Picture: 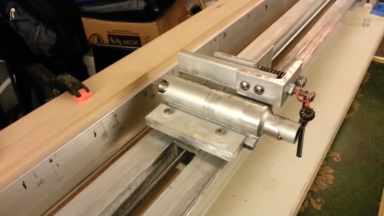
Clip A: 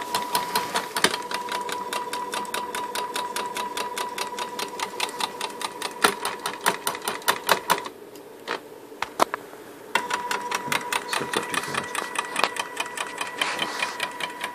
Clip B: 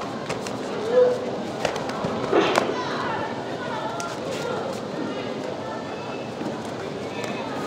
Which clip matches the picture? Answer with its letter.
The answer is A